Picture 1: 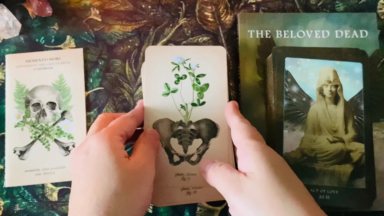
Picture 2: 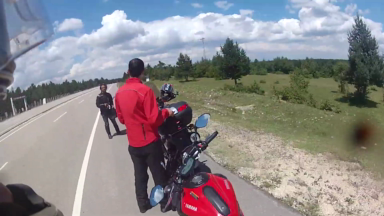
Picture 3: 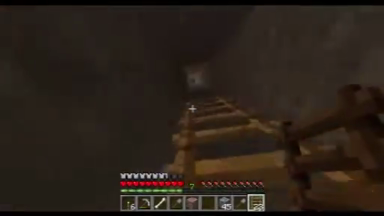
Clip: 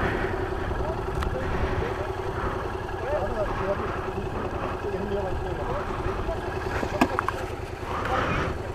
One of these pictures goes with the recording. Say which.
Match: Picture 2